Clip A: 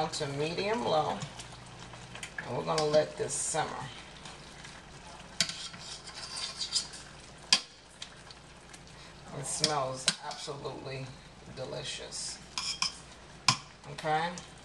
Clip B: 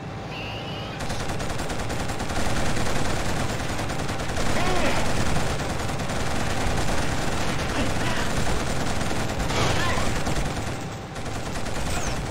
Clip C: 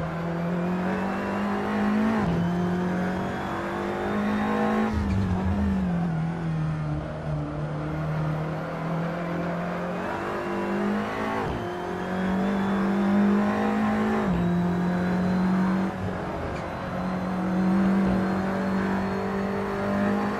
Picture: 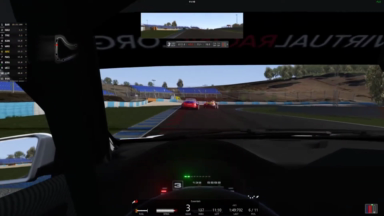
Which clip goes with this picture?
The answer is C